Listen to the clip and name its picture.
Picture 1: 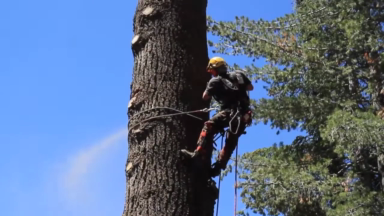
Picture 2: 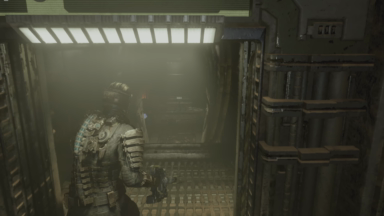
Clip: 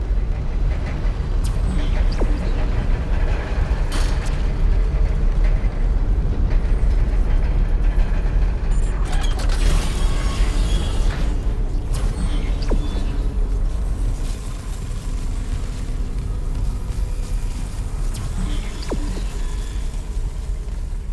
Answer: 2